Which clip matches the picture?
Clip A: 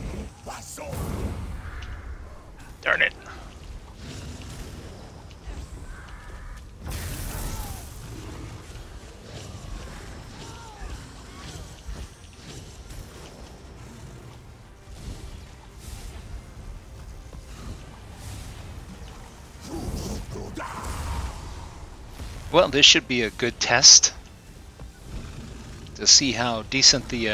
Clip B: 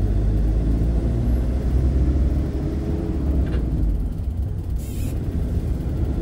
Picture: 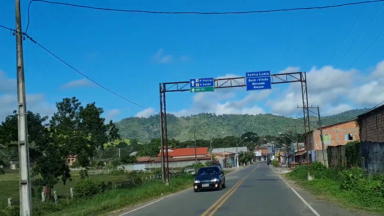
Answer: B